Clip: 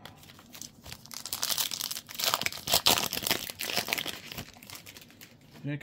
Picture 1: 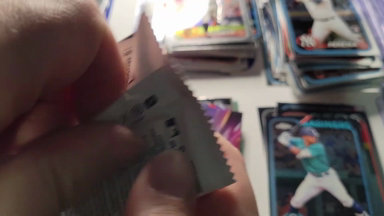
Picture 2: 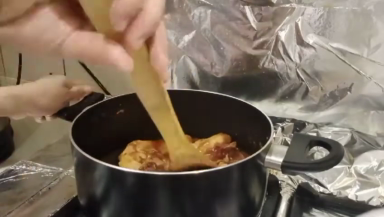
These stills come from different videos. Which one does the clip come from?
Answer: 1